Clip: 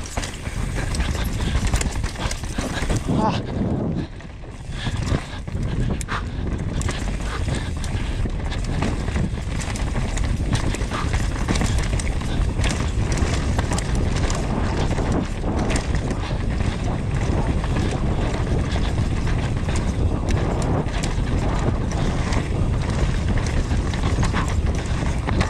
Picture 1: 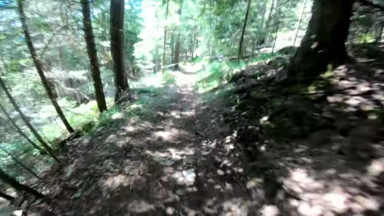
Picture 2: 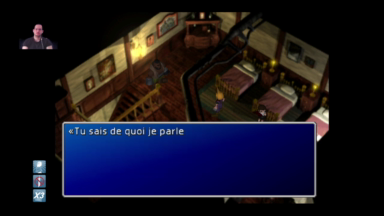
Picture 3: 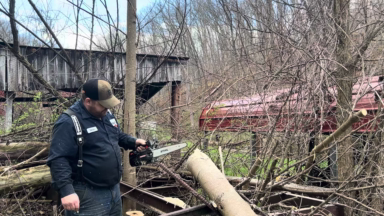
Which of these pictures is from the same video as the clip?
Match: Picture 1